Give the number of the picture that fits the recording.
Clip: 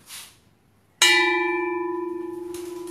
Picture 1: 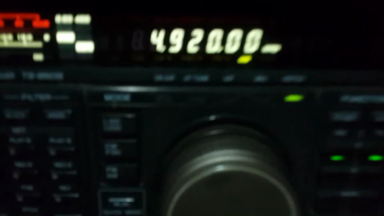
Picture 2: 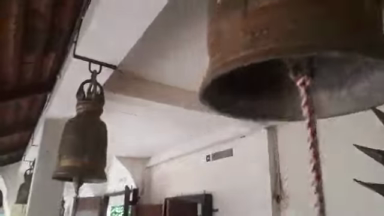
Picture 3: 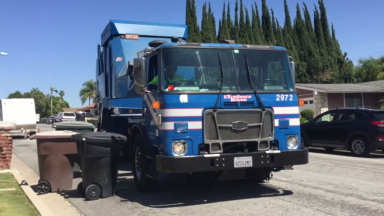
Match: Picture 2